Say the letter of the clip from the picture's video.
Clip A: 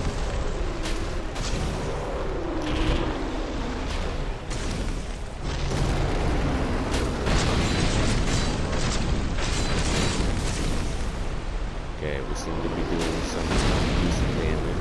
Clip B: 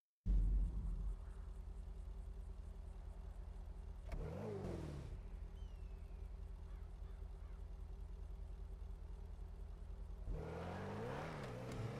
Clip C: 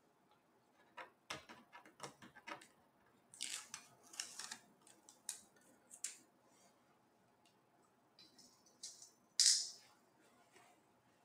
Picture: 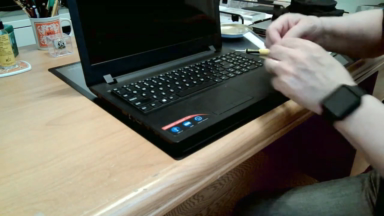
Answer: C